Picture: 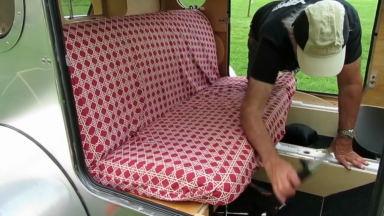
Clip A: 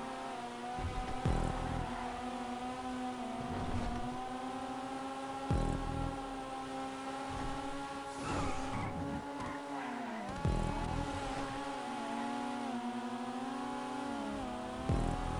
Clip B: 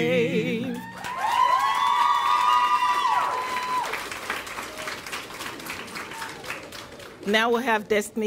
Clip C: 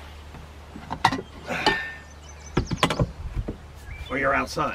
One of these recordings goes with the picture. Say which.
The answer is C